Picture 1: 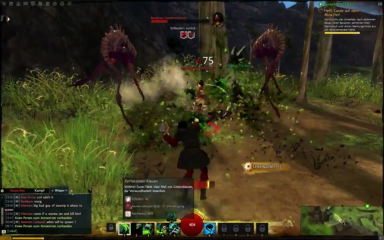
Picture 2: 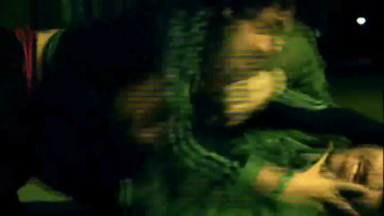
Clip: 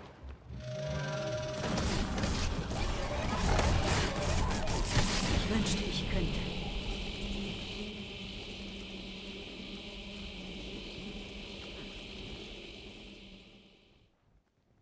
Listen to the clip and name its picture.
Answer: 1